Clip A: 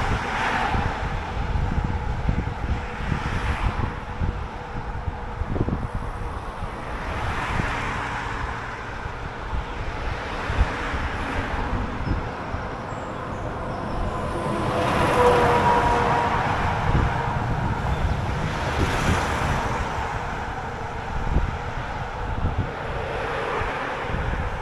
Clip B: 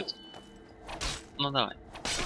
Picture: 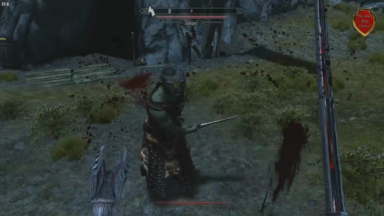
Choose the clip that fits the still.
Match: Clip B